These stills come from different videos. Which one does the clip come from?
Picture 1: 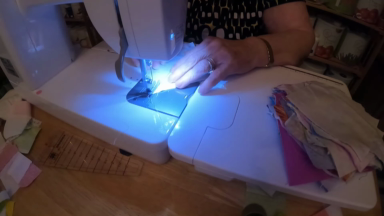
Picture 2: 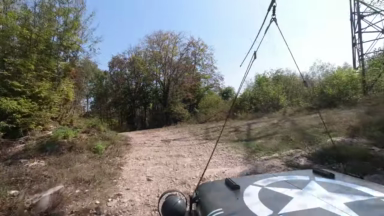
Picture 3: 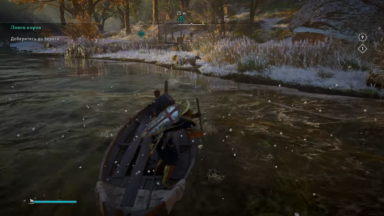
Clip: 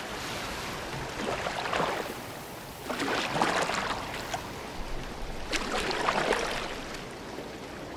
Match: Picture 3